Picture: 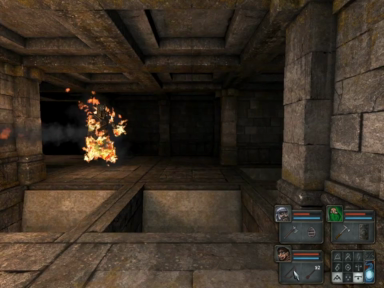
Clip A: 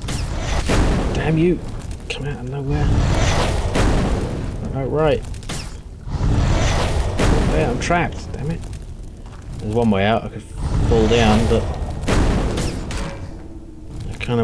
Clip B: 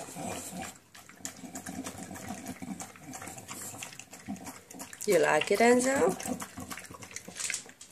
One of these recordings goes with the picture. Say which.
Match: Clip A